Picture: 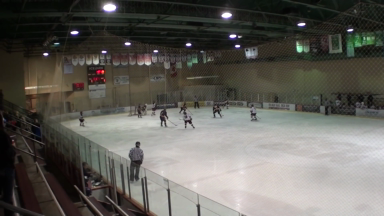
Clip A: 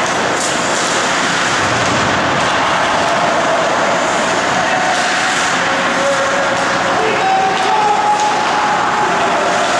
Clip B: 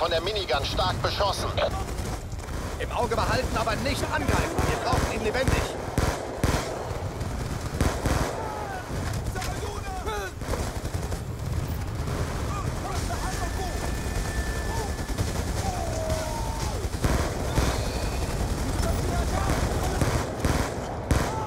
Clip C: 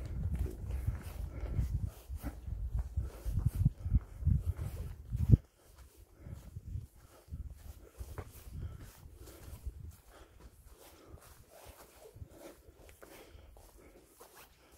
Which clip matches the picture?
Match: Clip A